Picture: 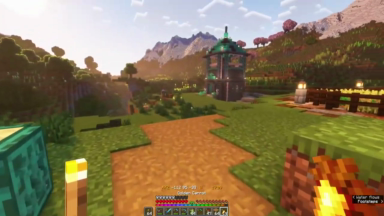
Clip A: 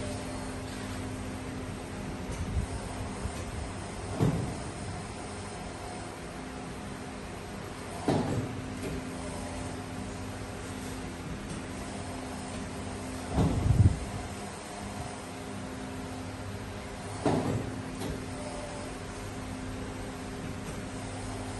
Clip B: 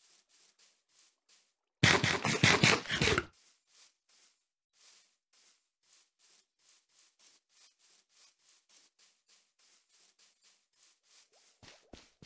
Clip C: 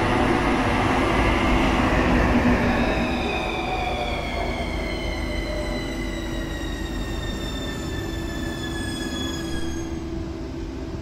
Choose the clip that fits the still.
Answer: B